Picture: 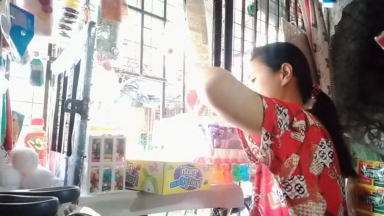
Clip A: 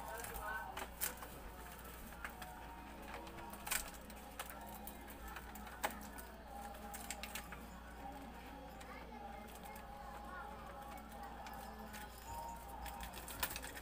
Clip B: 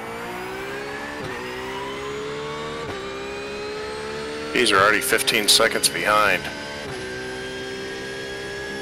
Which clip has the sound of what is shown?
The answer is A